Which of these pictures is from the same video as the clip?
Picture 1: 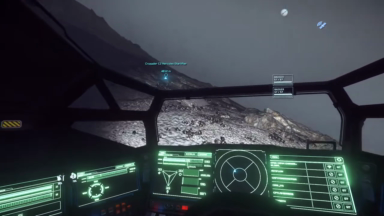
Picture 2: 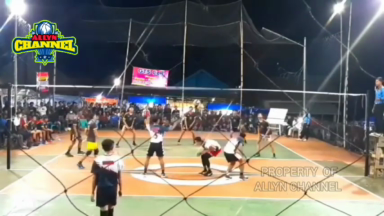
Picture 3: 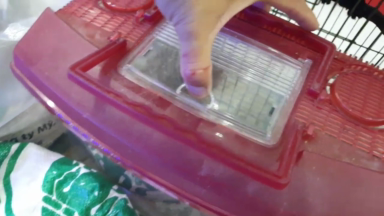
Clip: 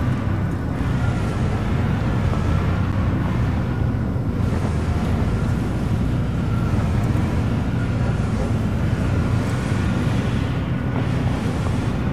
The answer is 1